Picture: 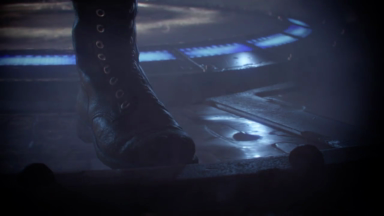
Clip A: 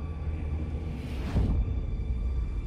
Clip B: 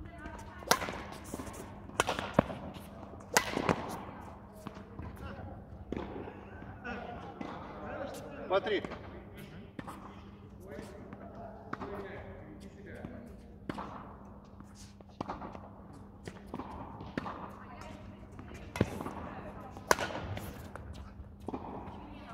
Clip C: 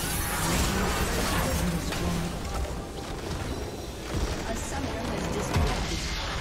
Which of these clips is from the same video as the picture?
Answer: A